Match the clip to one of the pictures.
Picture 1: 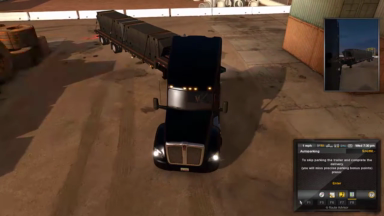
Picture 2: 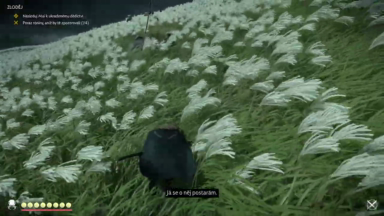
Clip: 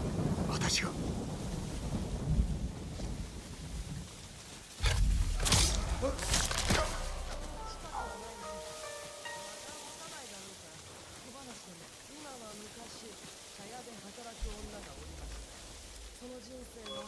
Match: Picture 2